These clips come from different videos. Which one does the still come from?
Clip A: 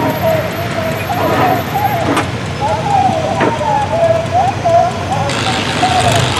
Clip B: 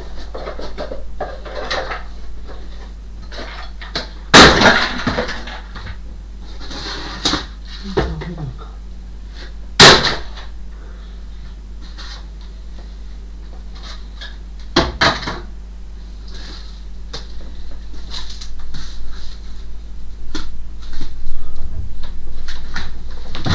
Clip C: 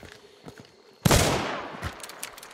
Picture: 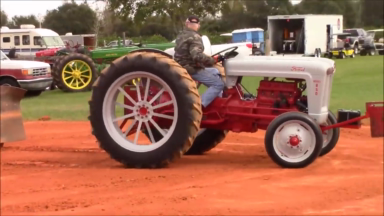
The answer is A